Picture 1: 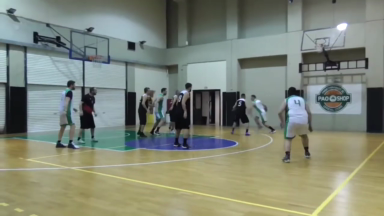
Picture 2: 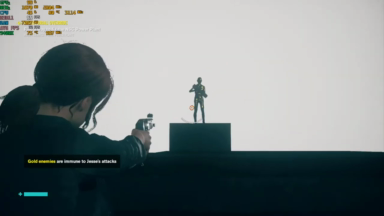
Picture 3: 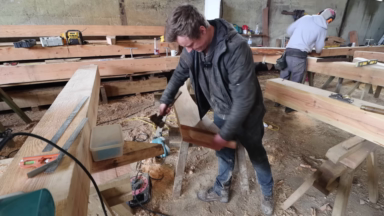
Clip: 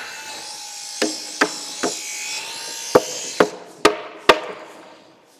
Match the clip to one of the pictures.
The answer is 3